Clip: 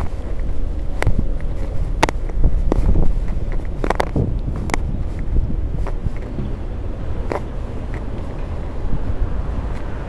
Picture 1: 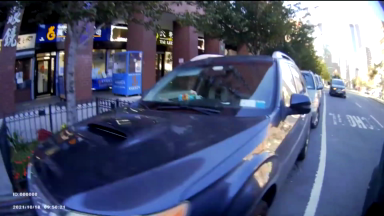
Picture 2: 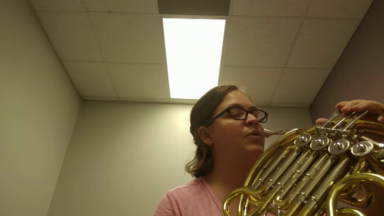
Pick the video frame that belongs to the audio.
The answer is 1